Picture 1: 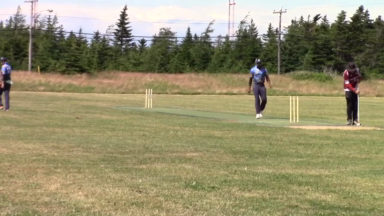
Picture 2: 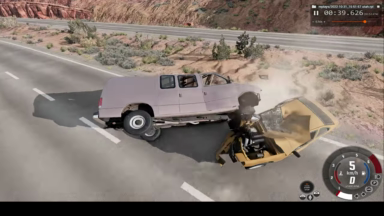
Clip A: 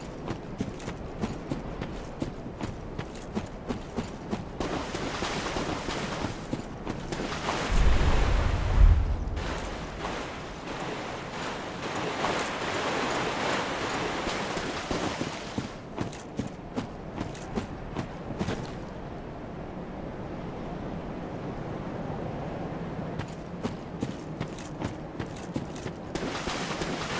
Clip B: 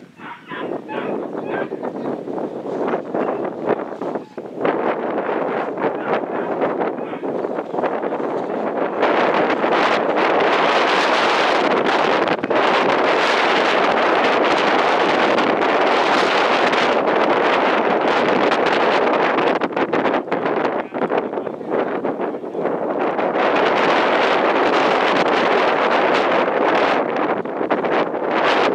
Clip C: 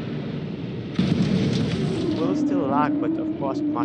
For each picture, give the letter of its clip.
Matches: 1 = B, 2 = C